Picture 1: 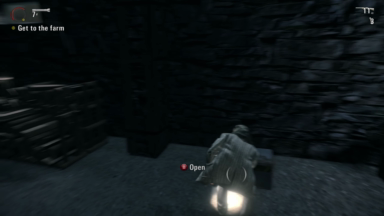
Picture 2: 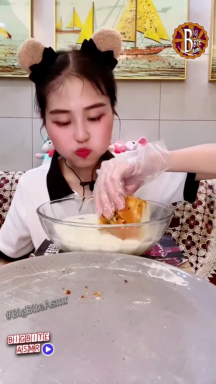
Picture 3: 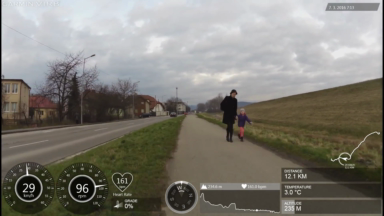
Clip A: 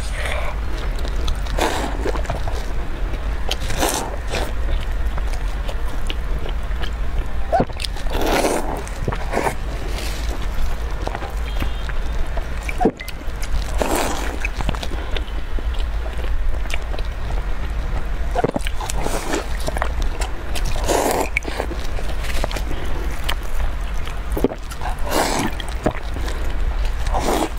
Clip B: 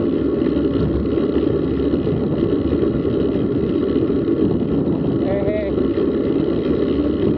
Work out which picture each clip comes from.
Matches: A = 2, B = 3